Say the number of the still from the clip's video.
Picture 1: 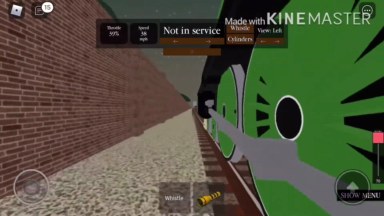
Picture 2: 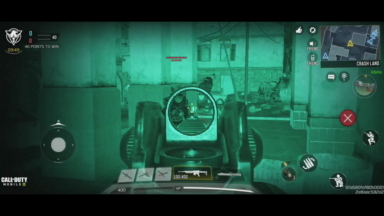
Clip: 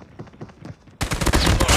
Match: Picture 2